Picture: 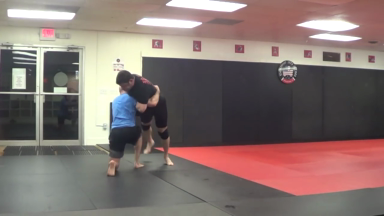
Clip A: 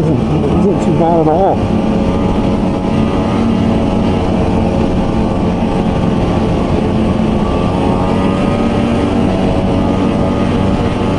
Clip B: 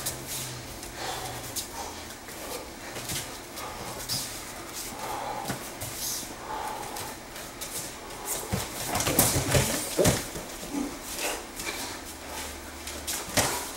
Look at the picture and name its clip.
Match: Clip B